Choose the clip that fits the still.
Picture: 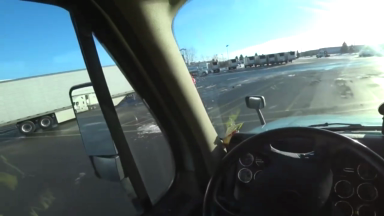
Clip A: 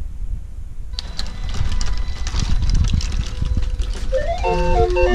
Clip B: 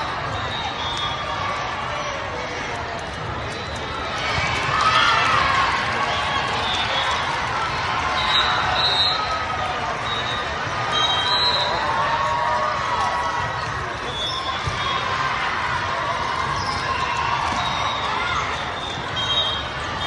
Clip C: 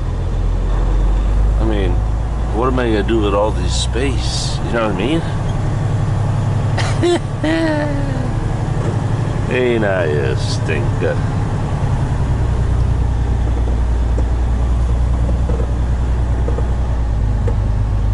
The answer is C